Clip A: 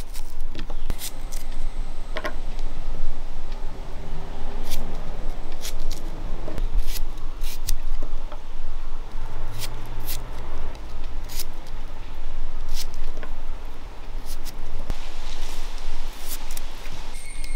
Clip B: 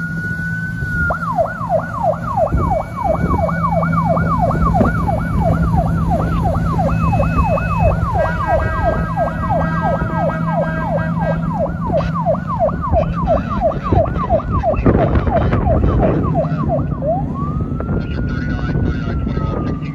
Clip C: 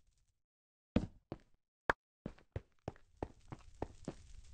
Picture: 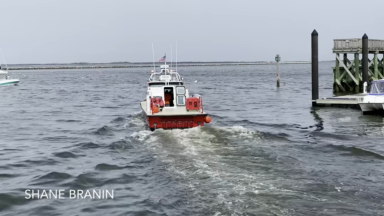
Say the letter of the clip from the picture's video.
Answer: B